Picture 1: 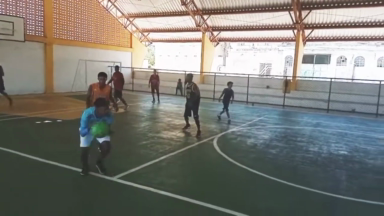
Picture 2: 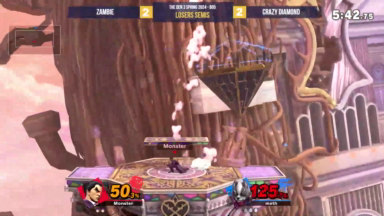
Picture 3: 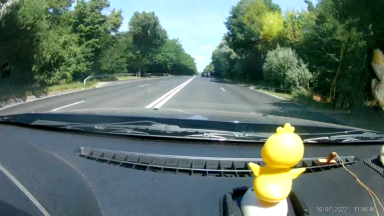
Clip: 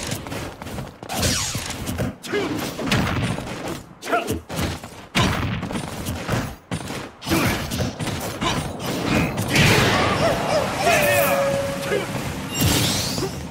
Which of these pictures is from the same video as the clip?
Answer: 2